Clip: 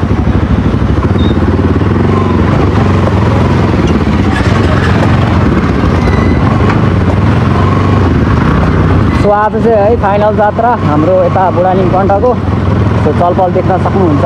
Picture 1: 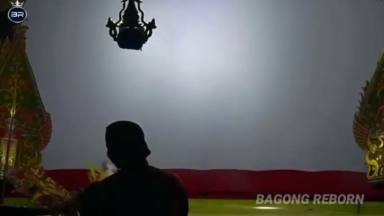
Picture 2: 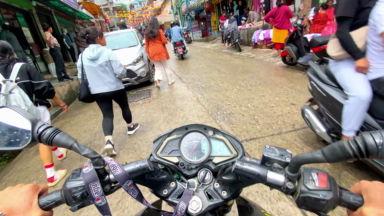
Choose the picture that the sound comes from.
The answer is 2